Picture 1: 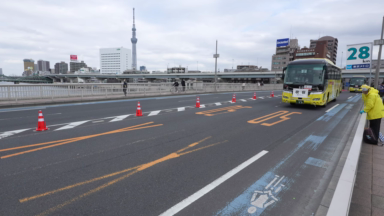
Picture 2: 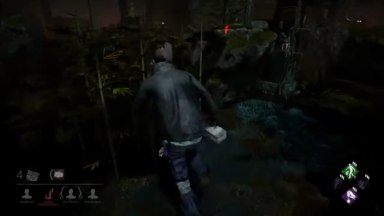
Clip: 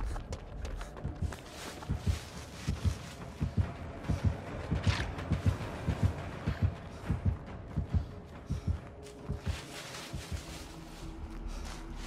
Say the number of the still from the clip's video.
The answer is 2